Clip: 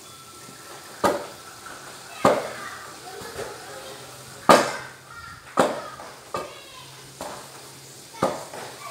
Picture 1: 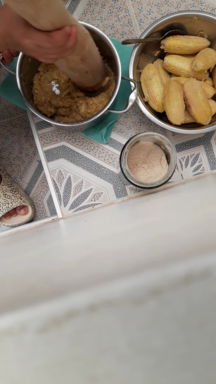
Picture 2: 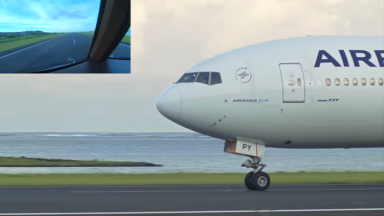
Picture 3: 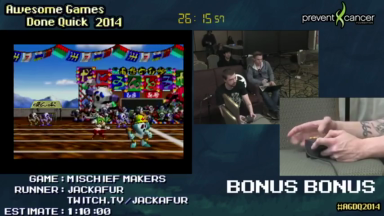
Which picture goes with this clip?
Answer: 1